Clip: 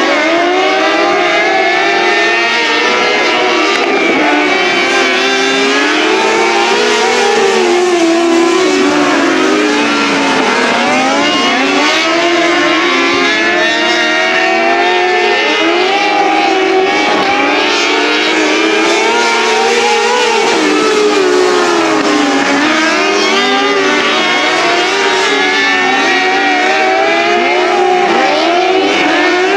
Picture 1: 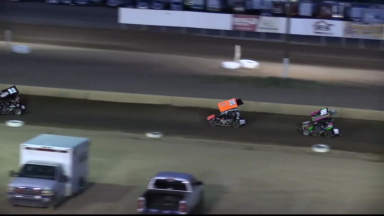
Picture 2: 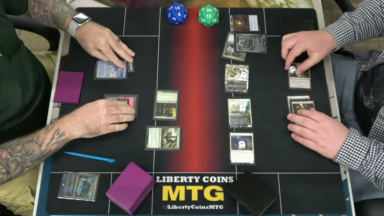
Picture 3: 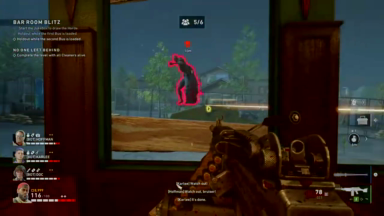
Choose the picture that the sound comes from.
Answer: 1